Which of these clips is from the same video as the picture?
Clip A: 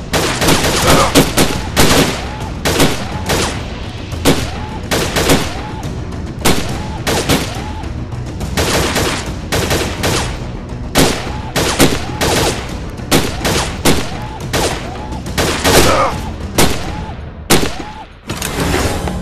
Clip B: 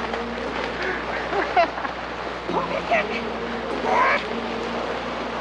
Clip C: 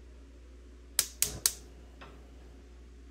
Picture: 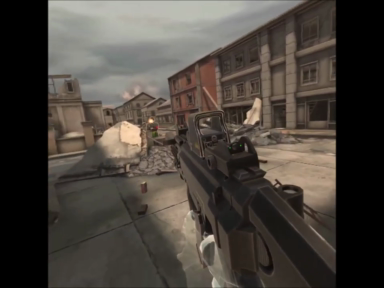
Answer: A